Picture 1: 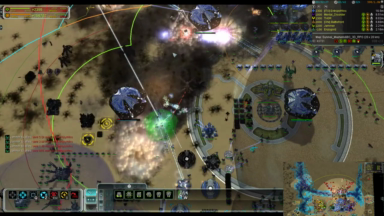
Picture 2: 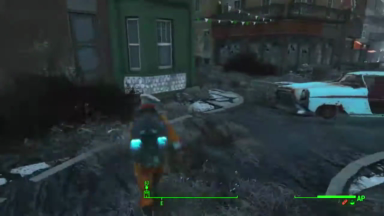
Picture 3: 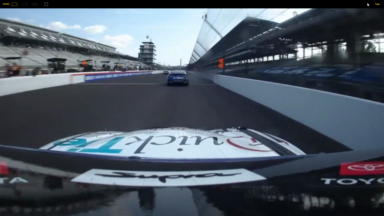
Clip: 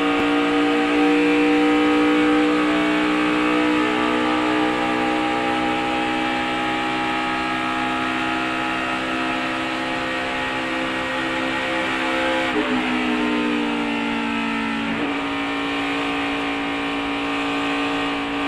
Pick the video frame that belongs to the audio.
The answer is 3